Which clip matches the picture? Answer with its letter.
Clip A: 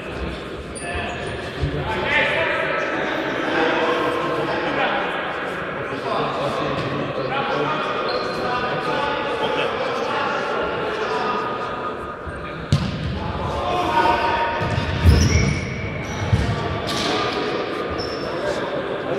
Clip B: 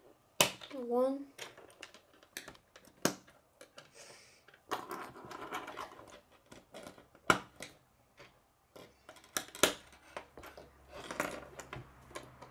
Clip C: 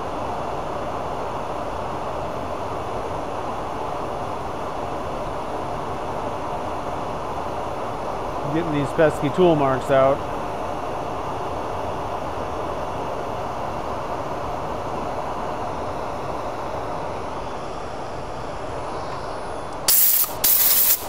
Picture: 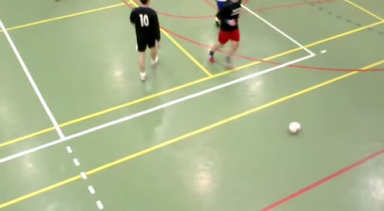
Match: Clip A